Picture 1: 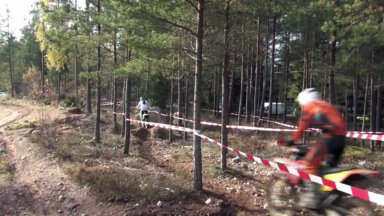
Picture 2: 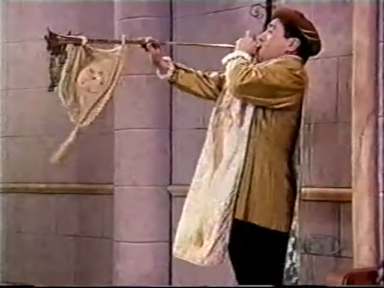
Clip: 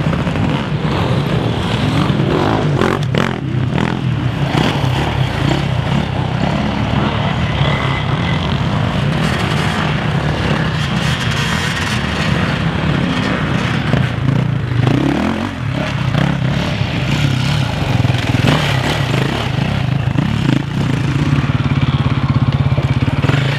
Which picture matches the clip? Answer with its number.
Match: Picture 1